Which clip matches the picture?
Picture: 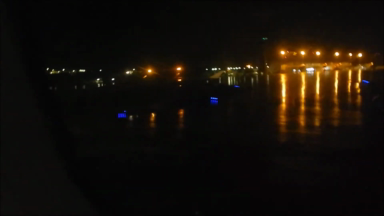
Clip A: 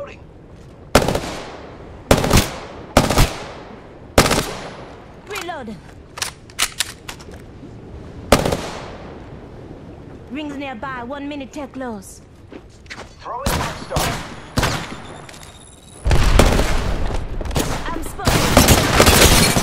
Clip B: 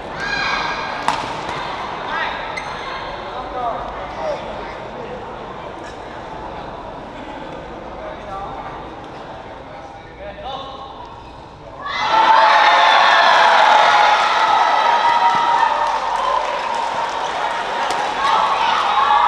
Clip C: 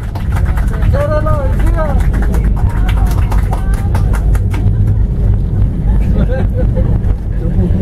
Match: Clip C